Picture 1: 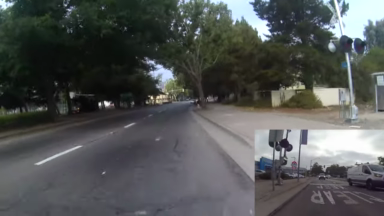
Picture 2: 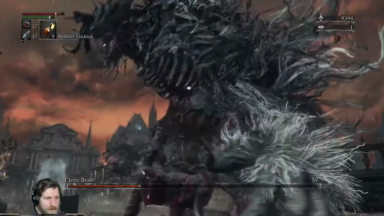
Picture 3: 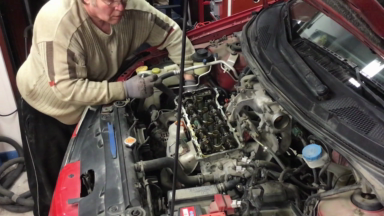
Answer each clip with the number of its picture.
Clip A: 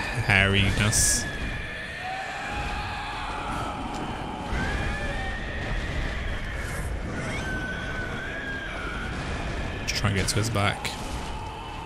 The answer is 2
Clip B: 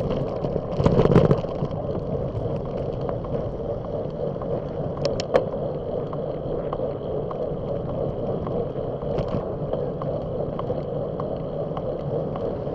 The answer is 1